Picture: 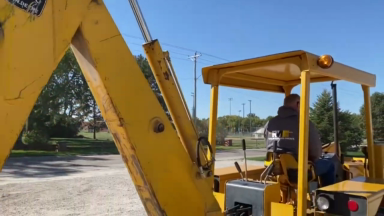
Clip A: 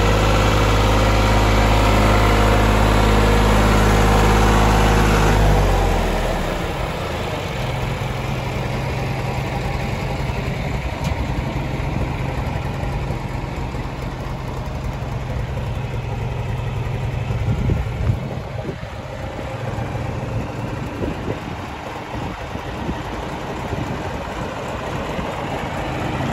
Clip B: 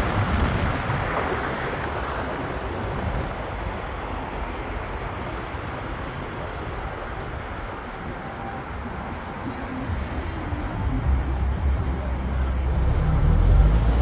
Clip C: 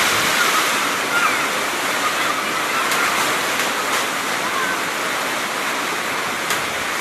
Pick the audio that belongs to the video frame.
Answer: A